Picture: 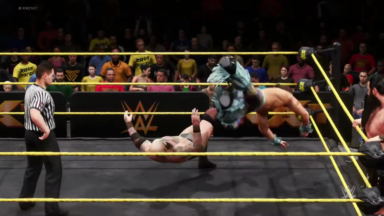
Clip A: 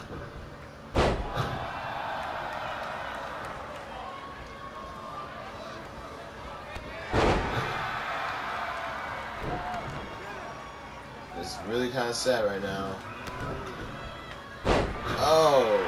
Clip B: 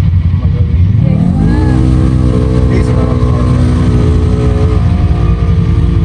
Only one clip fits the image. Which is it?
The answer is A